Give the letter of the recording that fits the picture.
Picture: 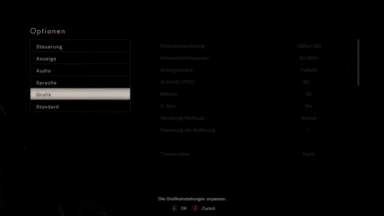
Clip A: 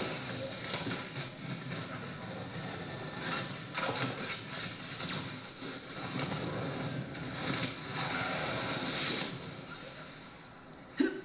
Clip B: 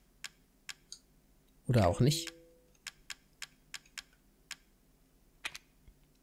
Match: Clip B